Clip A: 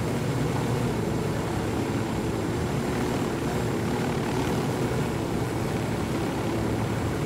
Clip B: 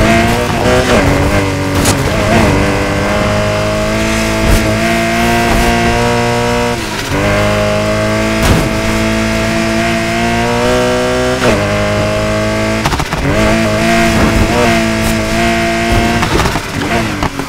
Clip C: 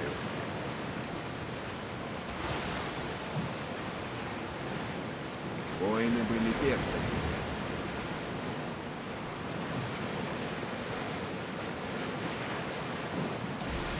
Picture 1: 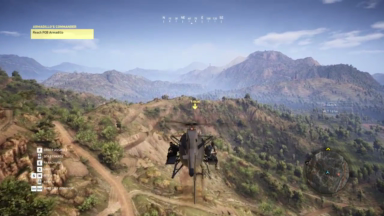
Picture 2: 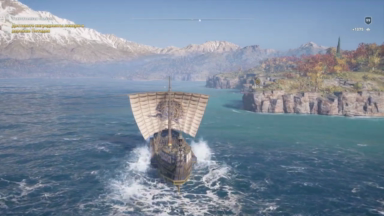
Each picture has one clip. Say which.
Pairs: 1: A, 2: C